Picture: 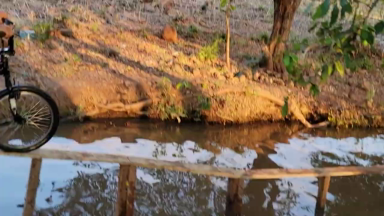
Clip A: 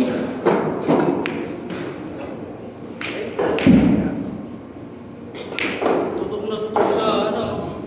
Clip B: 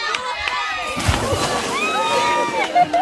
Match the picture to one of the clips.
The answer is B